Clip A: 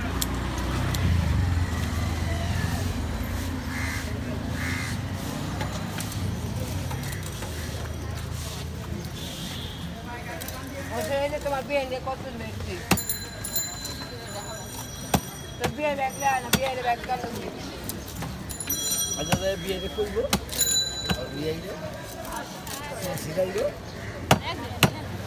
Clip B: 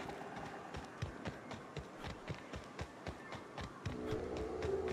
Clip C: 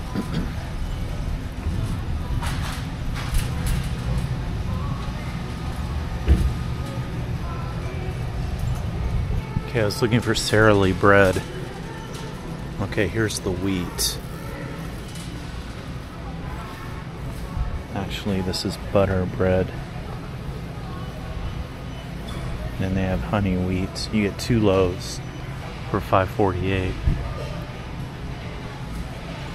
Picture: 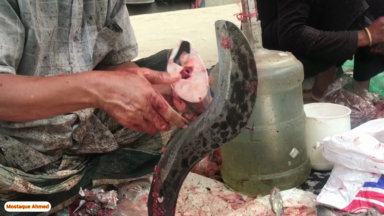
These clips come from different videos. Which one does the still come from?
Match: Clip A